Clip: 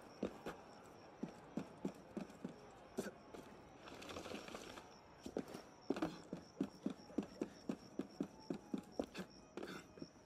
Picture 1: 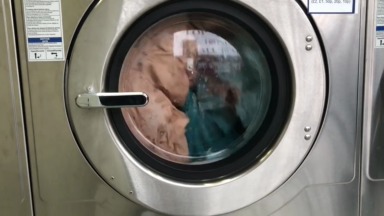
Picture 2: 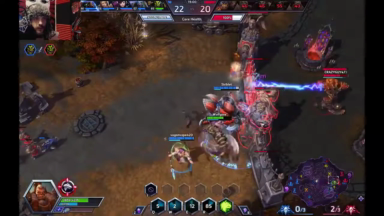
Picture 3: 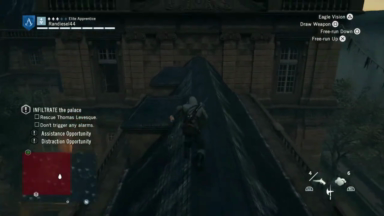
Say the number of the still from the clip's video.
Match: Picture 3